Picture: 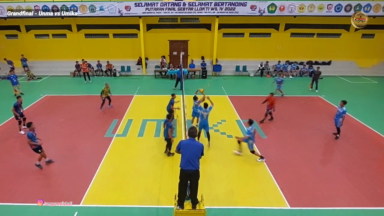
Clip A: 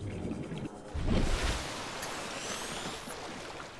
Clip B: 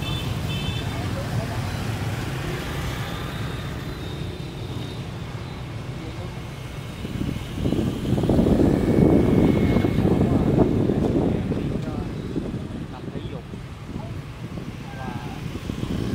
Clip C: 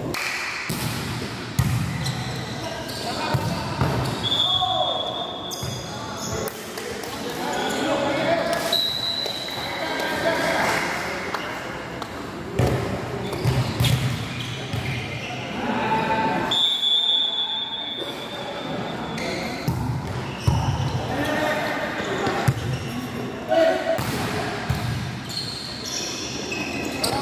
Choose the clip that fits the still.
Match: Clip C